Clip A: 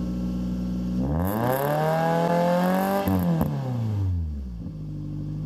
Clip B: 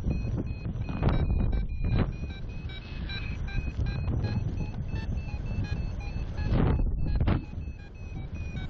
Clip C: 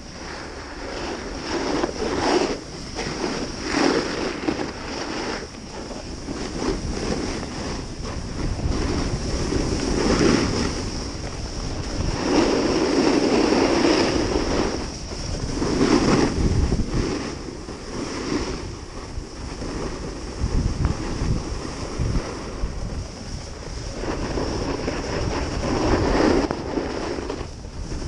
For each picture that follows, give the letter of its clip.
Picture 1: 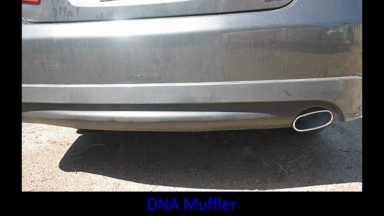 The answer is A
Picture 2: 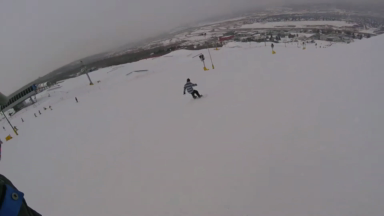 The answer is C